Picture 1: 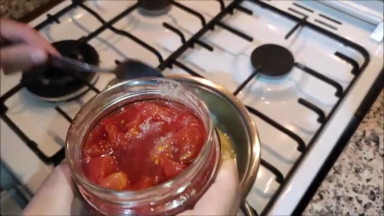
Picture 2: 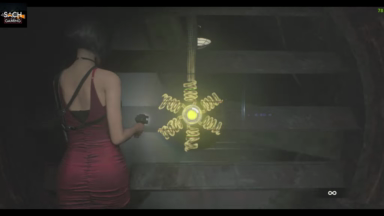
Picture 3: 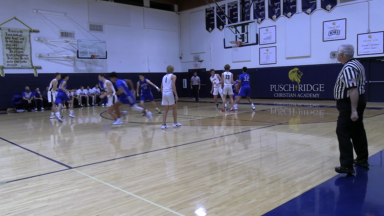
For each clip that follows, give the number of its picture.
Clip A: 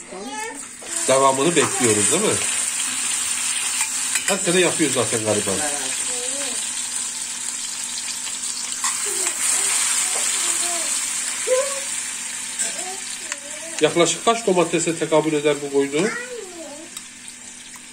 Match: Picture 1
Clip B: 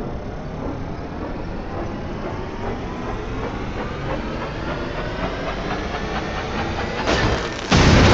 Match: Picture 2